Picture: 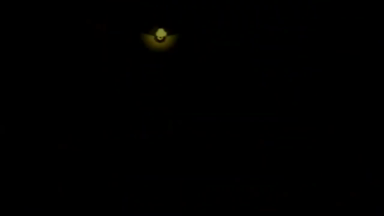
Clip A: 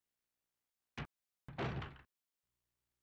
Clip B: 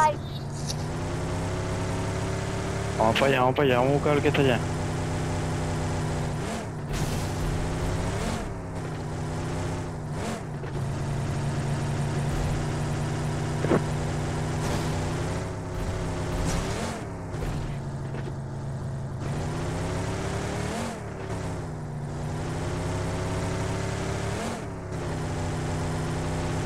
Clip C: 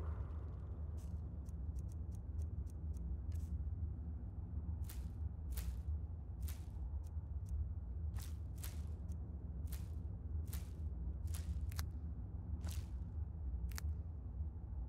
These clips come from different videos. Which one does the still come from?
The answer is A